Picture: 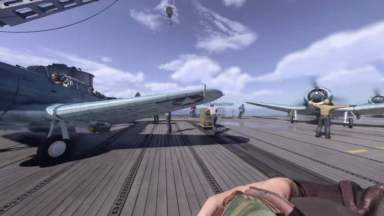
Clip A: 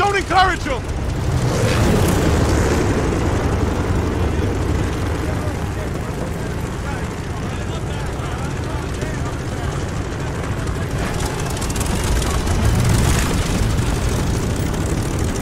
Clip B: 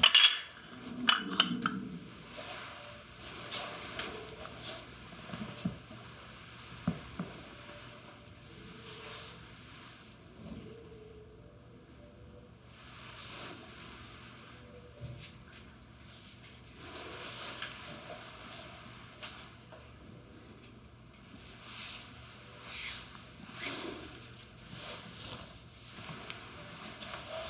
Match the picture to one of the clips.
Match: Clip A